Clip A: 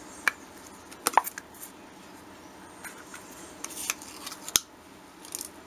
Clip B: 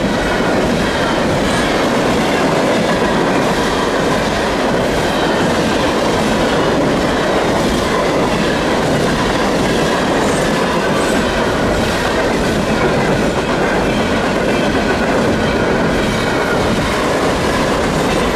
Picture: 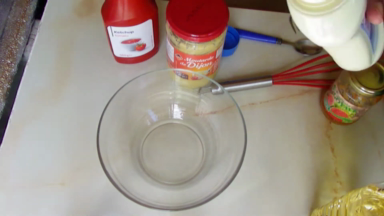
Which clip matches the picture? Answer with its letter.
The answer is A